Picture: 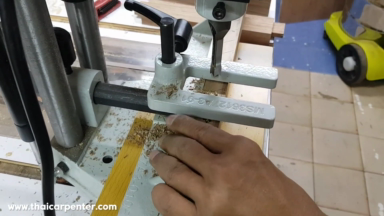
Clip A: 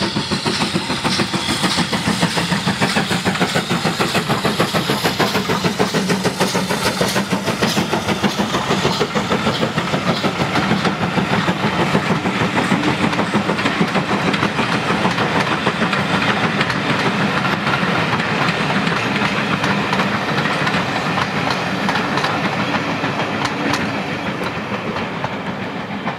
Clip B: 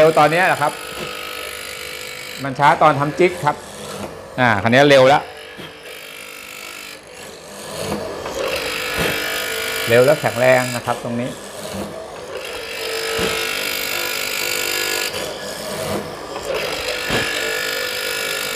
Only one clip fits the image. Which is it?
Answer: B